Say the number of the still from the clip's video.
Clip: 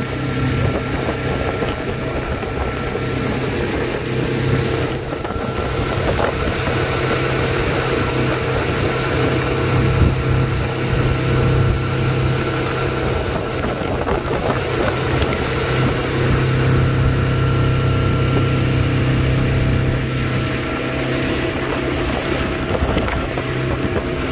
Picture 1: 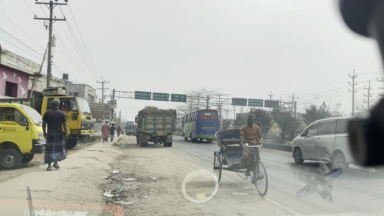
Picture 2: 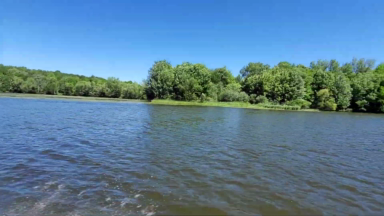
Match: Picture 2